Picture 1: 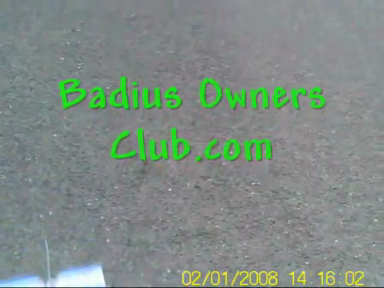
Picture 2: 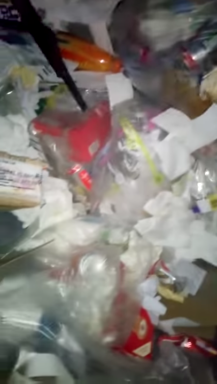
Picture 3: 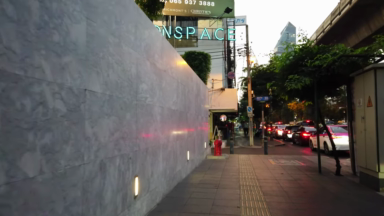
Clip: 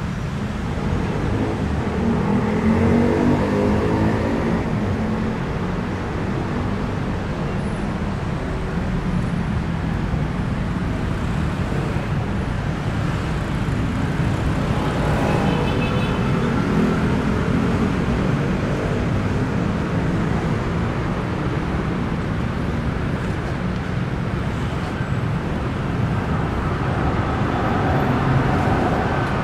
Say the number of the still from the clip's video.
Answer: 3